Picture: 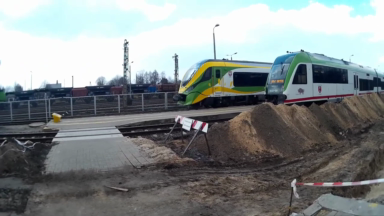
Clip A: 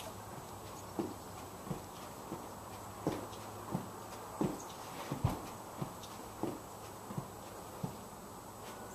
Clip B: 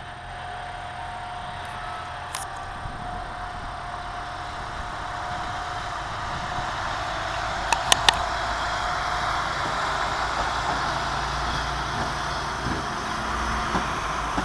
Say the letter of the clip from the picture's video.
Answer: B